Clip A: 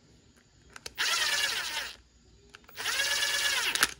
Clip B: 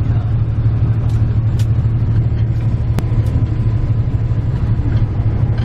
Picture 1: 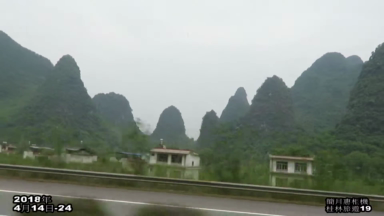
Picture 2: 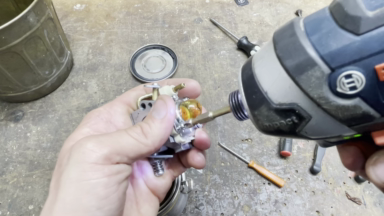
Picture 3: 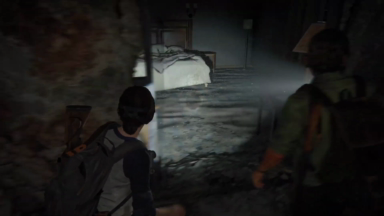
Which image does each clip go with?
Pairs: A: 2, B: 1